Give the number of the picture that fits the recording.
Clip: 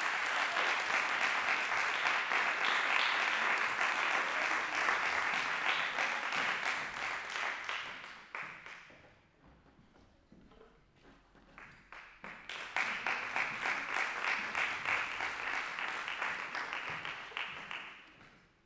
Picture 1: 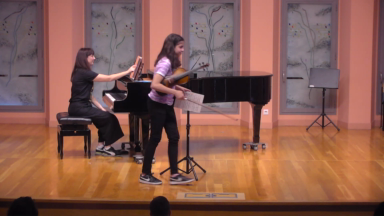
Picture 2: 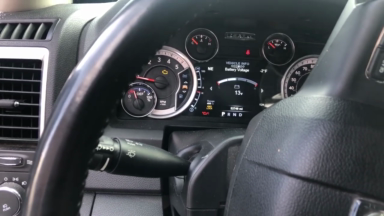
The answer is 1